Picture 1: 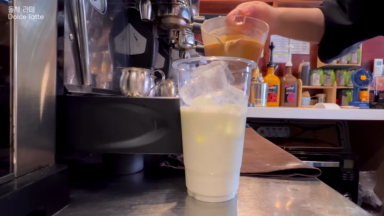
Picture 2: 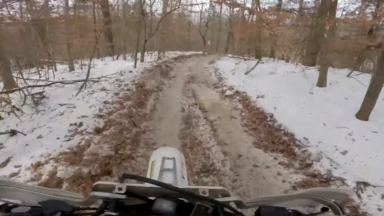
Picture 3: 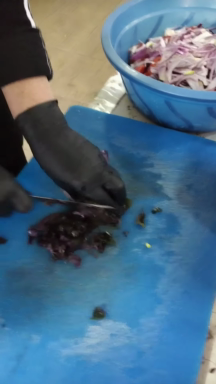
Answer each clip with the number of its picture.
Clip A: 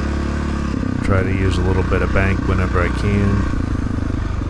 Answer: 2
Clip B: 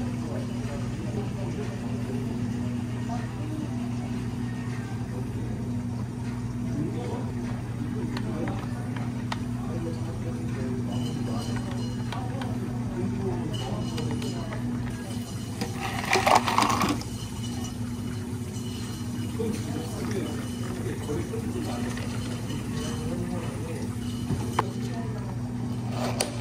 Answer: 1